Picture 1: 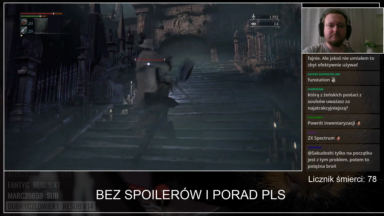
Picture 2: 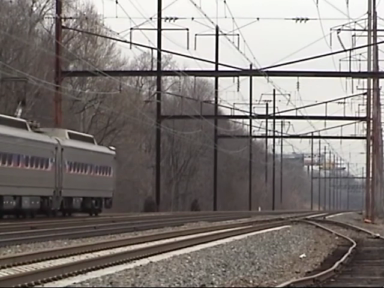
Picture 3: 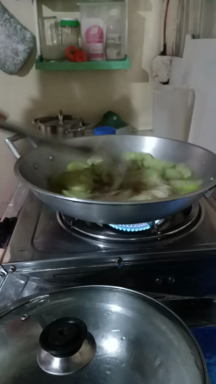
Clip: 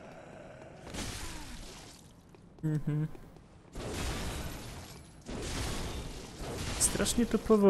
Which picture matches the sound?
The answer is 1